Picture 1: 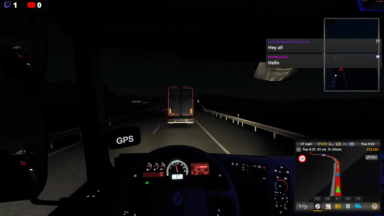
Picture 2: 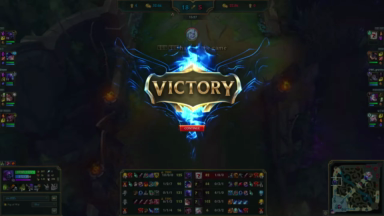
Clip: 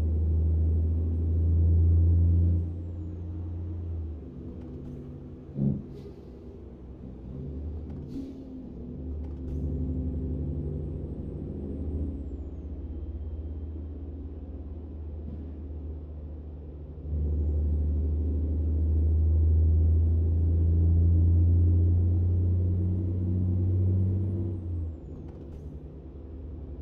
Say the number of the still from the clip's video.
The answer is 1